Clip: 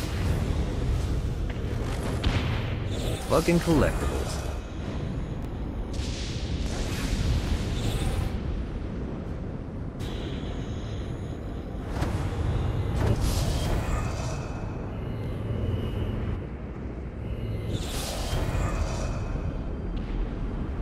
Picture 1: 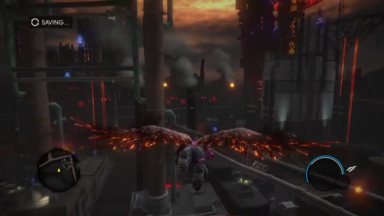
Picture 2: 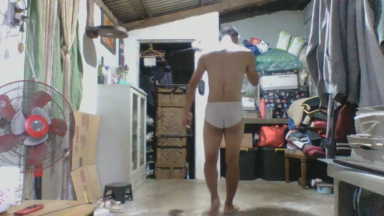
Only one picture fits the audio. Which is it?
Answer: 1